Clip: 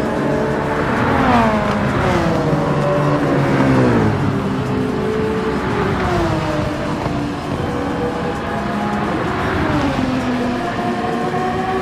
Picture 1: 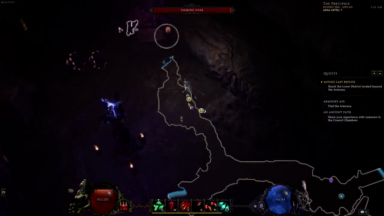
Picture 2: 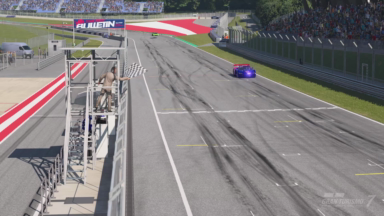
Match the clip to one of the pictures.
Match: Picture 2